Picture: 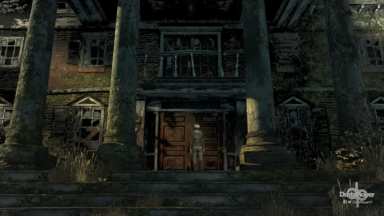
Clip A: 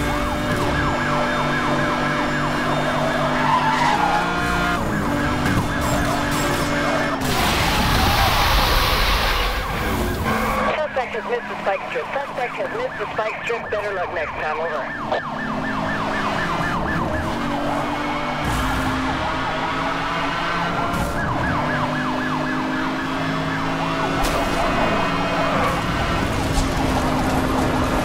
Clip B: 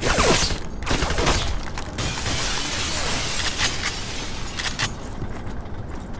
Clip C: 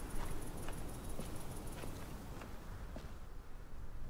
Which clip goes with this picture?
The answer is C